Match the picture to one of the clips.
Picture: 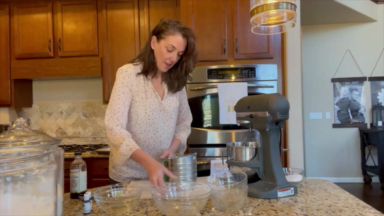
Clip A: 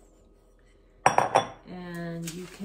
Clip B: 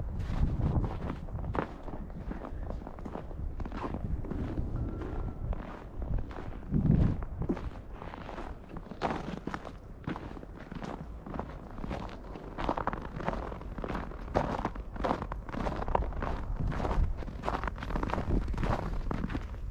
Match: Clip A